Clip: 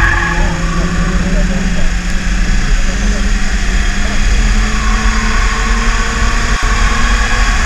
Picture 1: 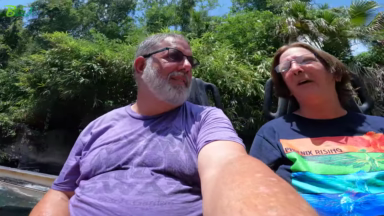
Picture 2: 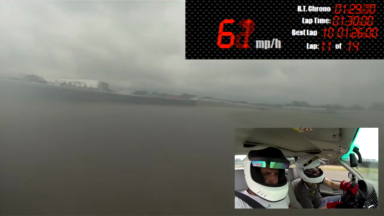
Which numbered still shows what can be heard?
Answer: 2